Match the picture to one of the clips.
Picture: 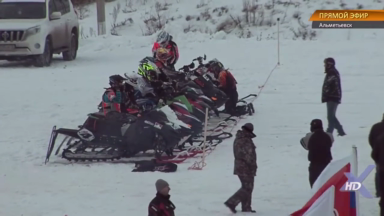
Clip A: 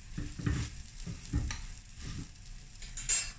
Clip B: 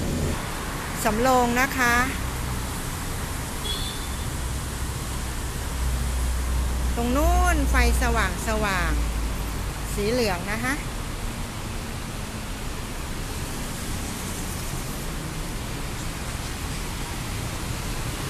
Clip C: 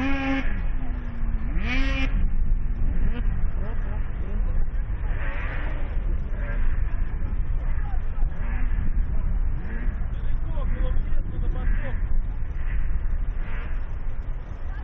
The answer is C